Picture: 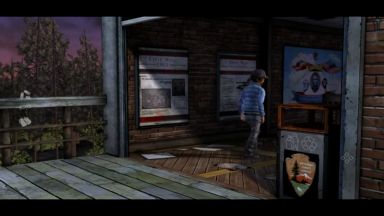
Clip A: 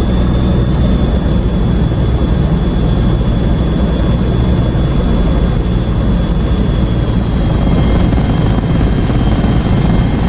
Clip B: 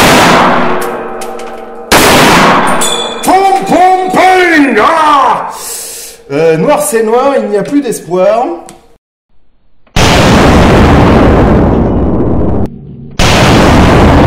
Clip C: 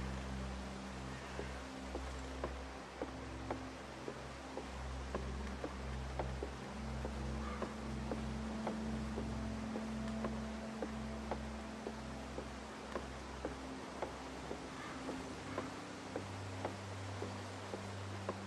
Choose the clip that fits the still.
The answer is C